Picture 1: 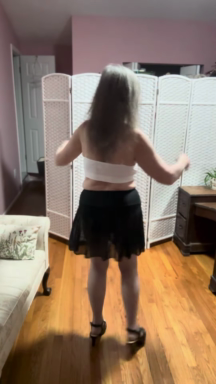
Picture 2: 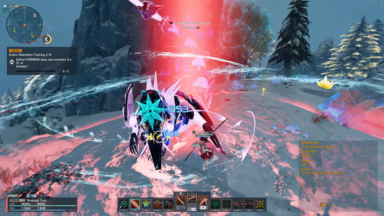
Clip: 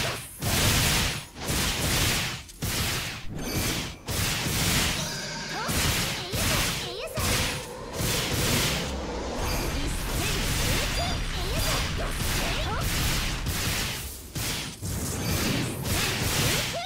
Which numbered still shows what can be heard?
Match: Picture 2